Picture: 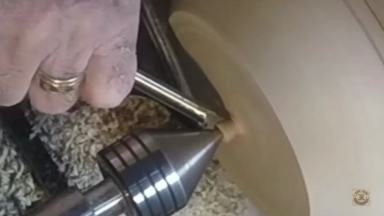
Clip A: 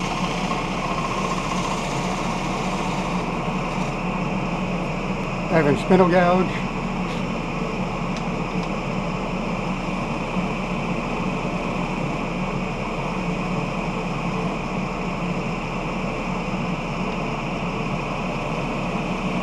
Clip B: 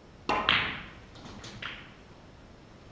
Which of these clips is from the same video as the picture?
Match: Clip A